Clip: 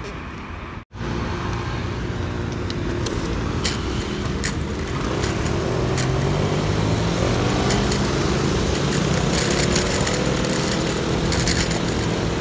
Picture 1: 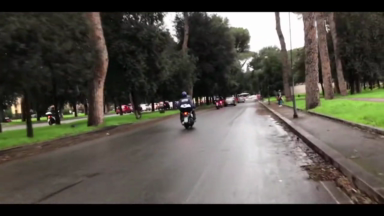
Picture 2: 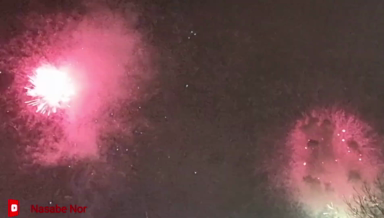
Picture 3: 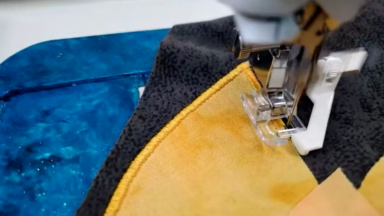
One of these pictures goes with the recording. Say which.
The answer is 1